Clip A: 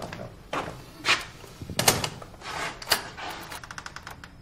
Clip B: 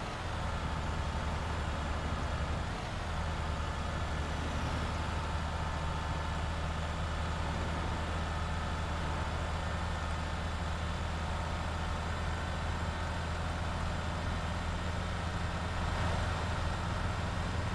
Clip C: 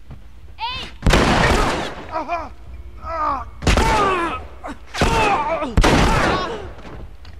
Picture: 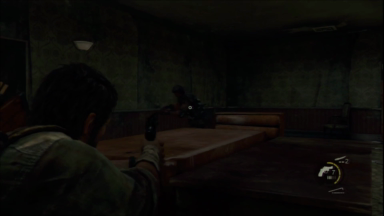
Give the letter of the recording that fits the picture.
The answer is C